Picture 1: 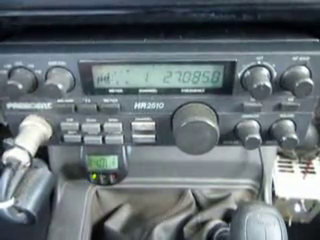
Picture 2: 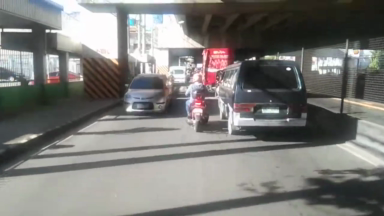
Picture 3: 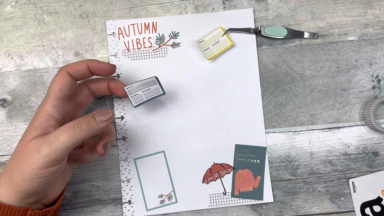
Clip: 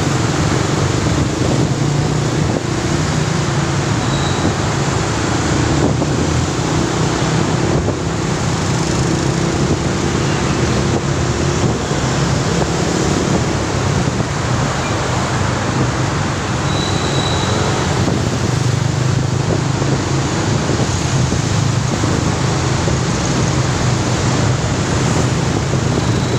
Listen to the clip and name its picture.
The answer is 2